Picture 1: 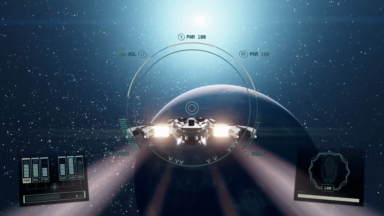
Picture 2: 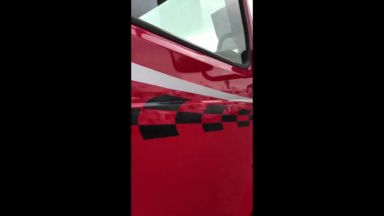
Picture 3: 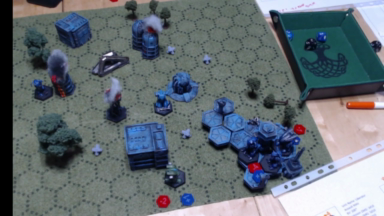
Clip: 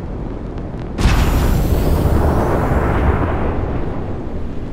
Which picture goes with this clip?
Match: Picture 1